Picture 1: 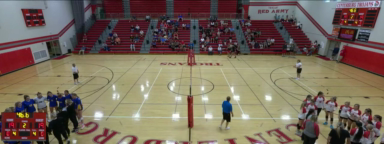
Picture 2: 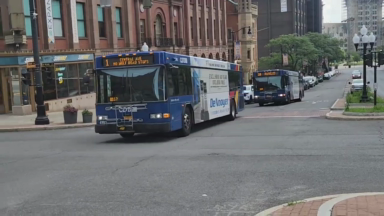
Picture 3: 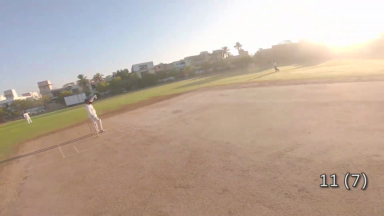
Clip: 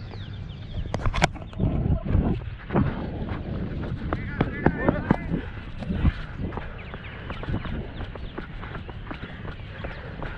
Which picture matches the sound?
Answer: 3